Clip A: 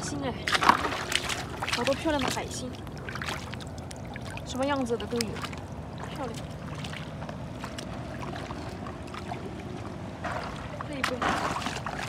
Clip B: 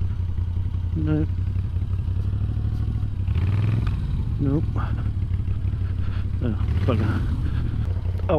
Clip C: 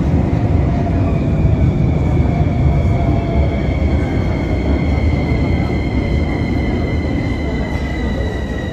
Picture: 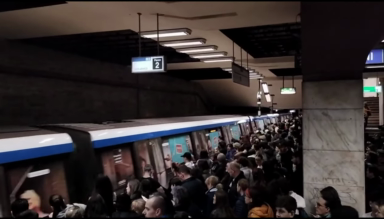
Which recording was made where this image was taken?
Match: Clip C